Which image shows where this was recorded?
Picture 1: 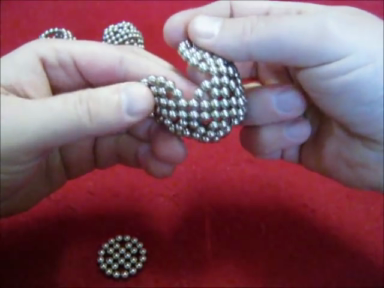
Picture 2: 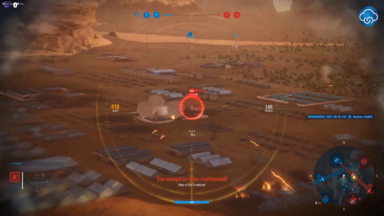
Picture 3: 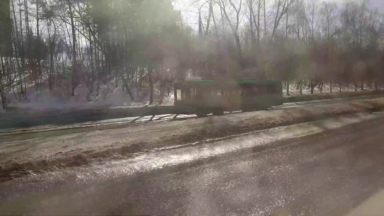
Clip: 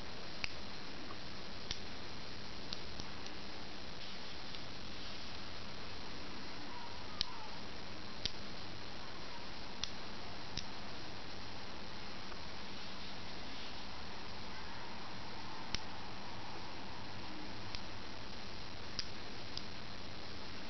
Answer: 1